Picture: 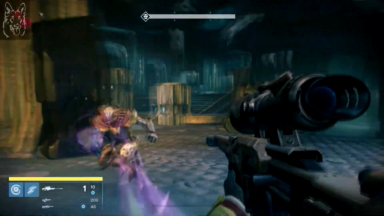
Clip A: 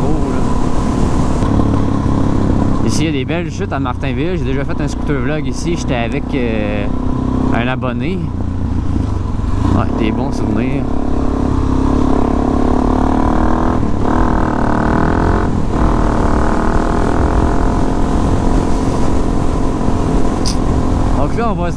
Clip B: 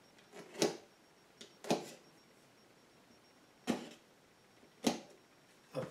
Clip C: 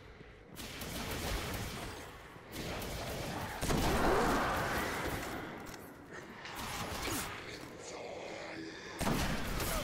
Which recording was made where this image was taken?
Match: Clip C